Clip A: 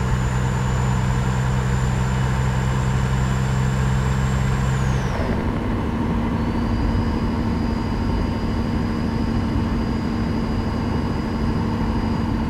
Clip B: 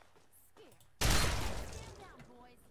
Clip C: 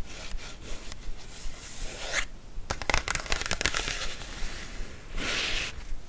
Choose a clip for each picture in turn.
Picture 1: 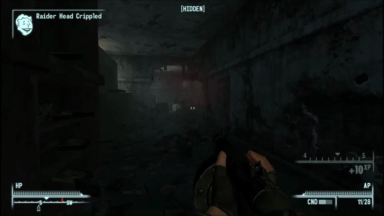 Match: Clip B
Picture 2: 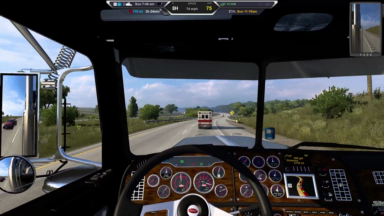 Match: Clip A